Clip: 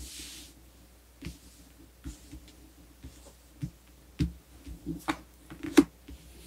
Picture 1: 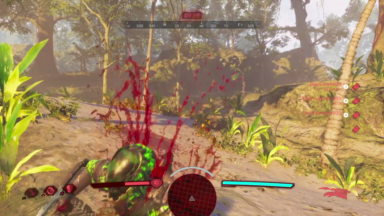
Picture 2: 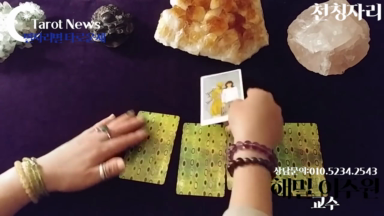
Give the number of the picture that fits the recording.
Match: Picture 2